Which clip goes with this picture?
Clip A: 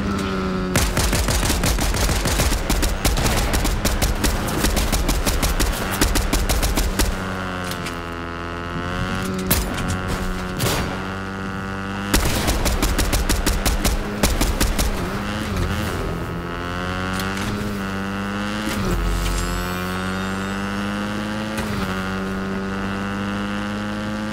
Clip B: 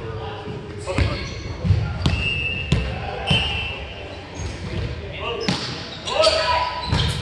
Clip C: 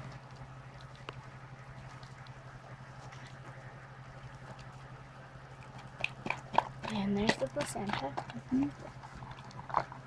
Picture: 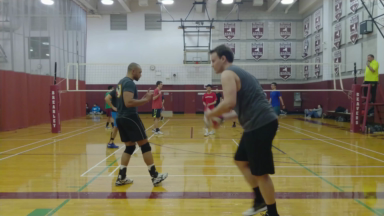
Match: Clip B